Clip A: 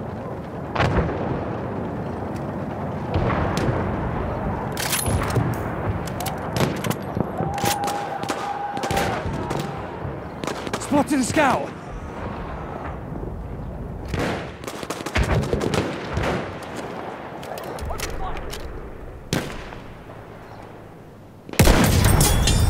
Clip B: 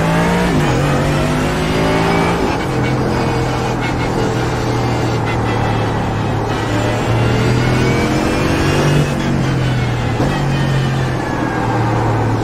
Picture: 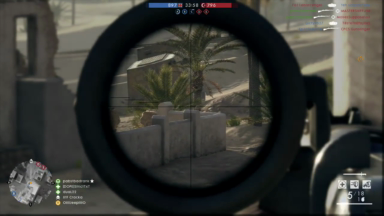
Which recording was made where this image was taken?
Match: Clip A